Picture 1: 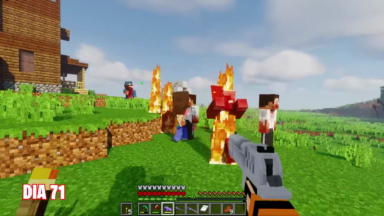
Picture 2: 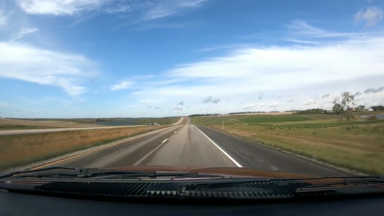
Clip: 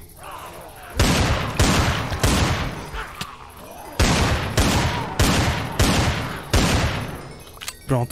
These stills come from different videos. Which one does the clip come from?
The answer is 1